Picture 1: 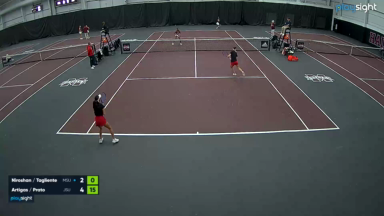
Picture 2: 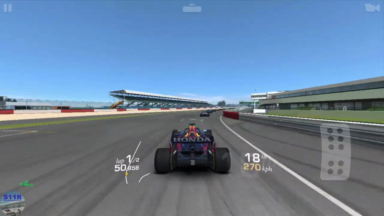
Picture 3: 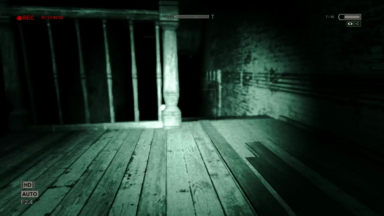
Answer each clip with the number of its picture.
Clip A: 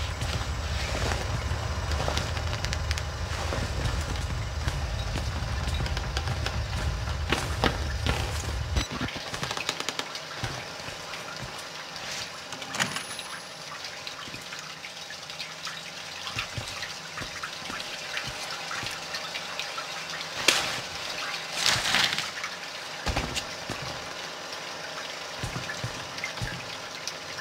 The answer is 3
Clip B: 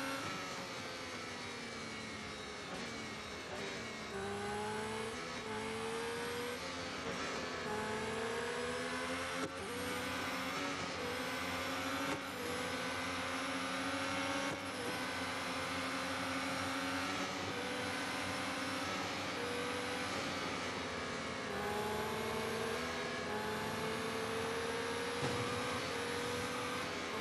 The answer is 2